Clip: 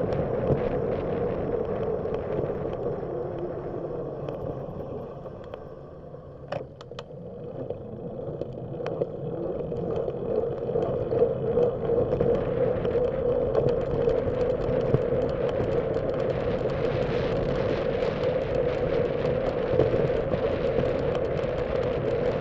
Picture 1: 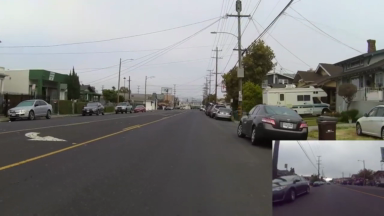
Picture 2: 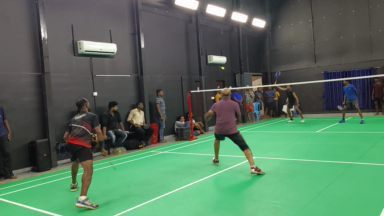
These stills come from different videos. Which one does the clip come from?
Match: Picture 1